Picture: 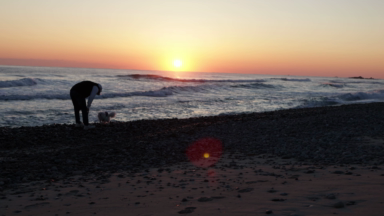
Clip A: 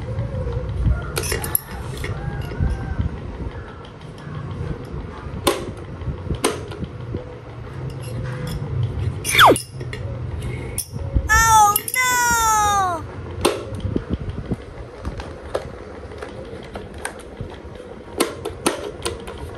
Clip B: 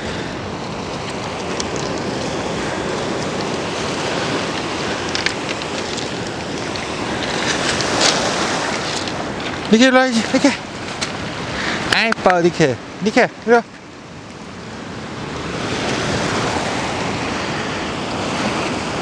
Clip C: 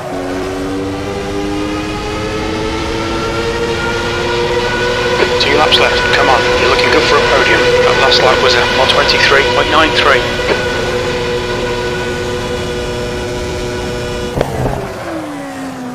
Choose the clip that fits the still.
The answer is B